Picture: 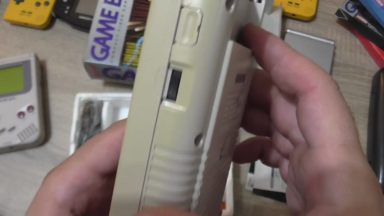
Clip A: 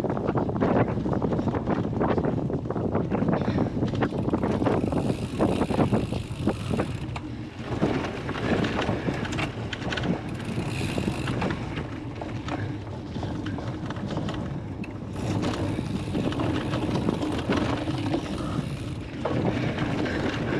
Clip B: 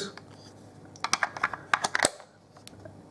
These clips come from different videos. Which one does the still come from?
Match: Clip B